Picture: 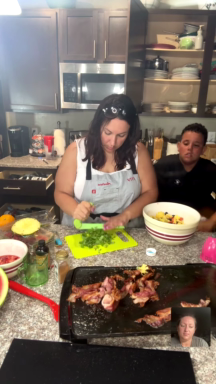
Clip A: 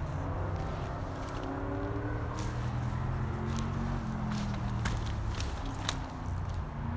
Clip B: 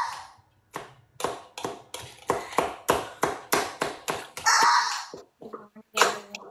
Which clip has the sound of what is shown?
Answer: B